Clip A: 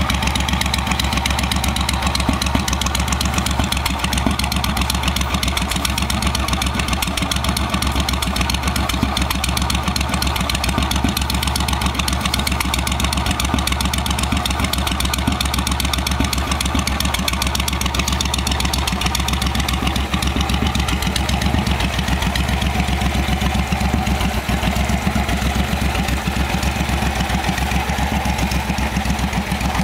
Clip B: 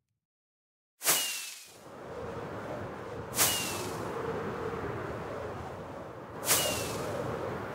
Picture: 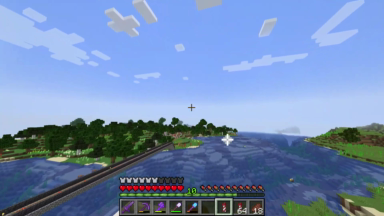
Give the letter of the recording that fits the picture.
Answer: B